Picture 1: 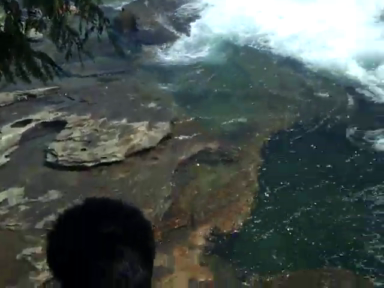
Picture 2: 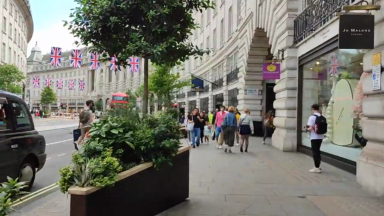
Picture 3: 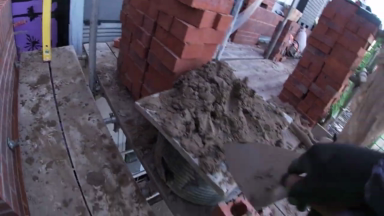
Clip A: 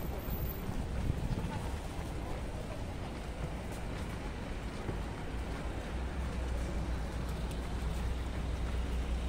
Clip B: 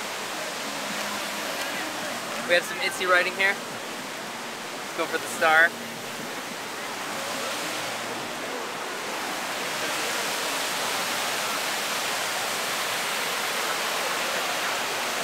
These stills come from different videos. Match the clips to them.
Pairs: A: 2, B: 1